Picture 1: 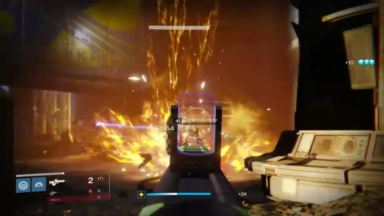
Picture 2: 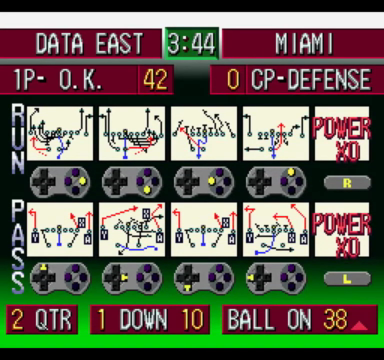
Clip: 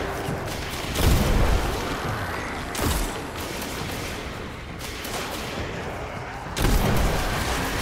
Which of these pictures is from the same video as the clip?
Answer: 1